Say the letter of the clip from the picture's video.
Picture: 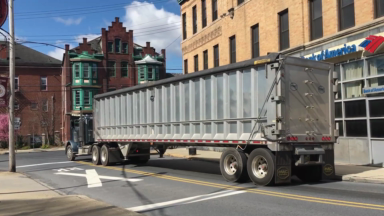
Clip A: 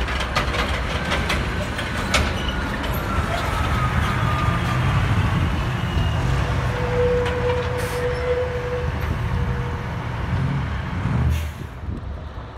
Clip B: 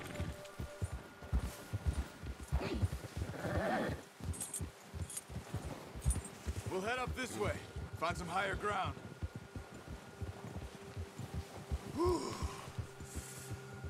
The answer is A